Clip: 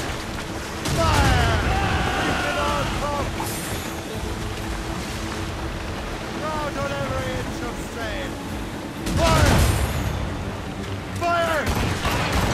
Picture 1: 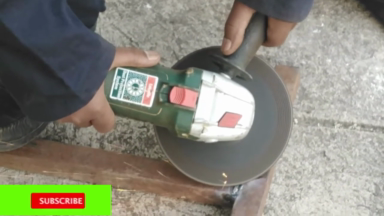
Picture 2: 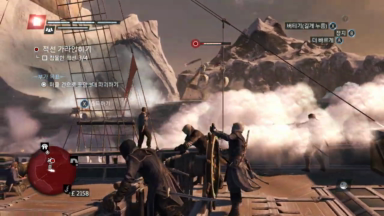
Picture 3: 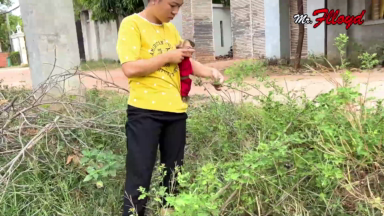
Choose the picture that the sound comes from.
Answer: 2